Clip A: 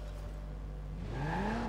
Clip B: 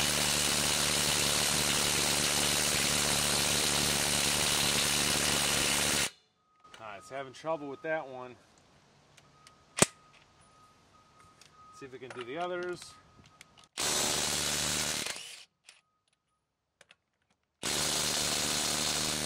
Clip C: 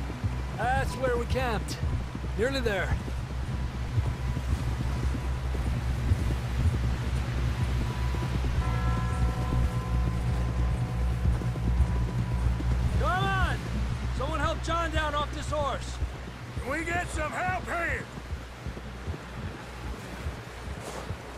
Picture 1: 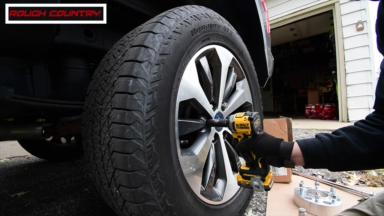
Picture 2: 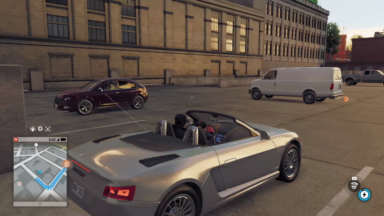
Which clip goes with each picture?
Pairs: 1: B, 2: A